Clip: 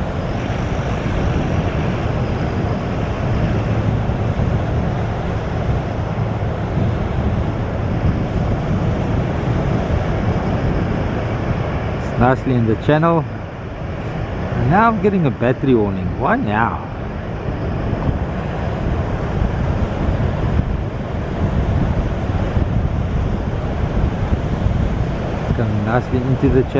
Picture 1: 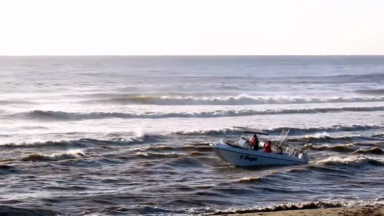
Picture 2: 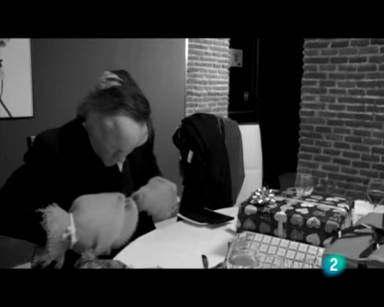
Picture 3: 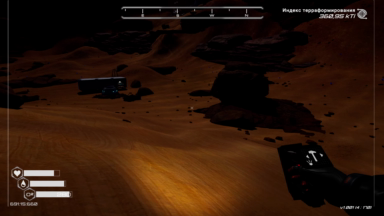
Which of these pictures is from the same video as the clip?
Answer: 1